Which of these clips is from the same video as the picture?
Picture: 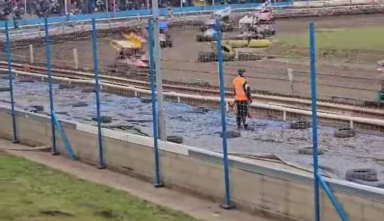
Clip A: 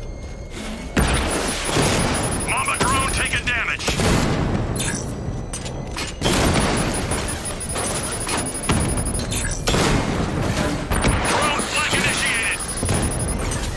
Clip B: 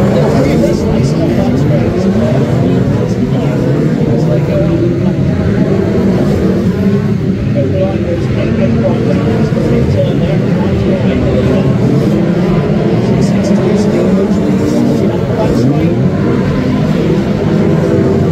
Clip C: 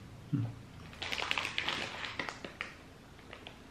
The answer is B